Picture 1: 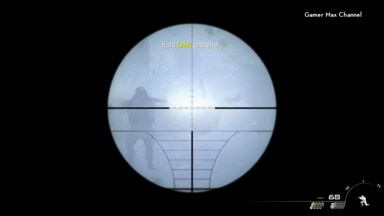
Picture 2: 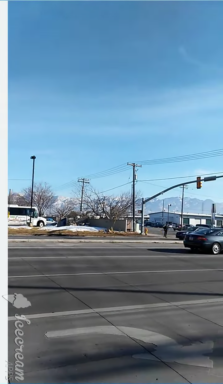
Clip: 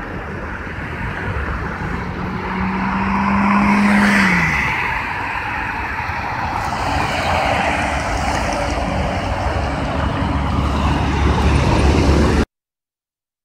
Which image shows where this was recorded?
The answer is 2